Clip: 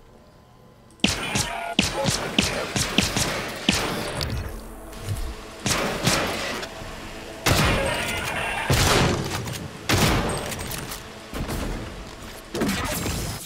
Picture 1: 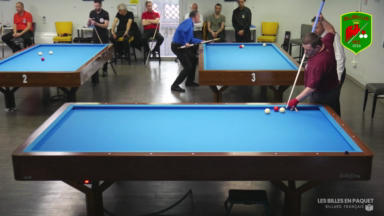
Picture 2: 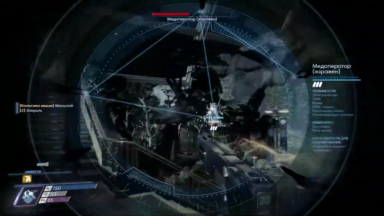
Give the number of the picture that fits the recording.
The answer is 2